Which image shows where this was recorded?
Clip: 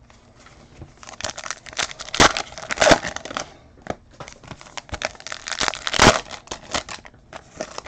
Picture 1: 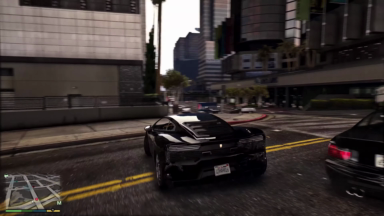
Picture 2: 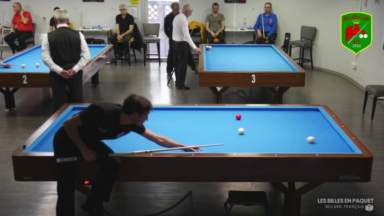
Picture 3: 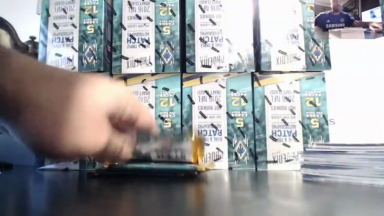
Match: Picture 3